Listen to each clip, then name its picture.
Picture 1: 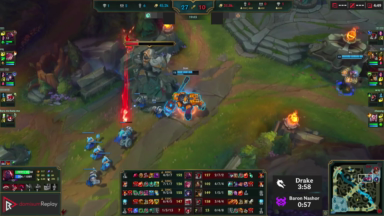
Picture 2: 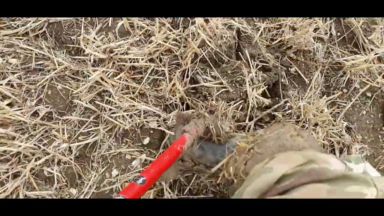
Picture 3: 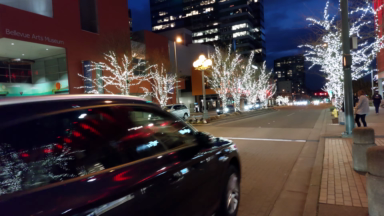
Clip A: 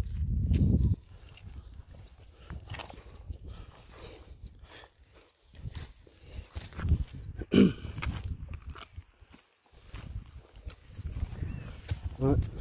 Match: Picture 2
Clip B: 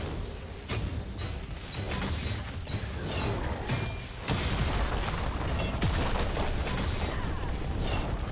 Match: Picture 1